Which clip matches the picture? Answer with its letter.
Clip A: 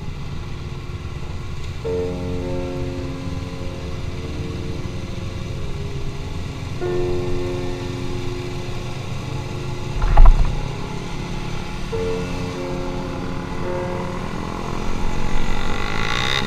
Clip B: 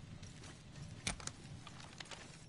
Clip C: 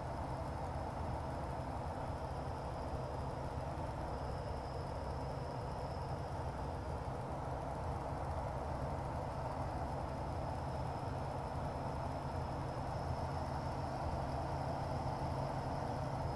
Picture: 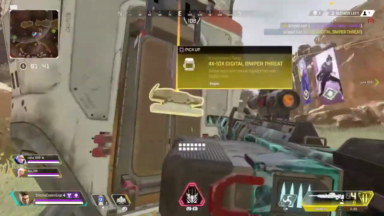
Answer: B